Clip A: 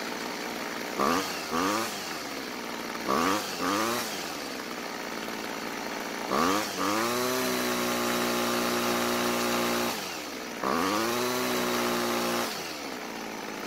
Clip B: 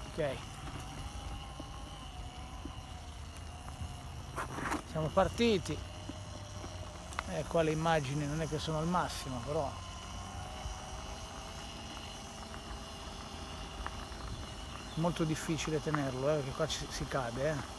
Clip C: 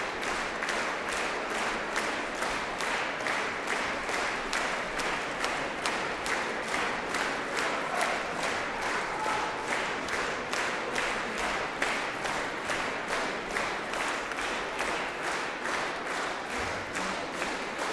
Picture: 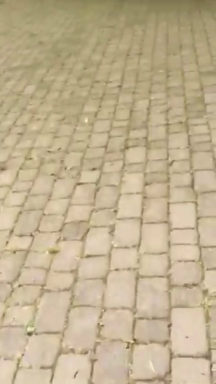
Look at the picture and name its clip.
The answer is B